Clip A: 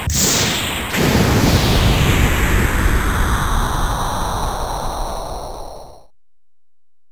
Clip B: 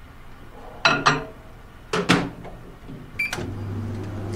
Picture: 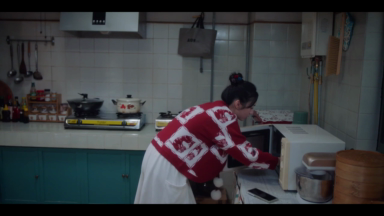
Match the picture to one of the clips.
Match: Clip B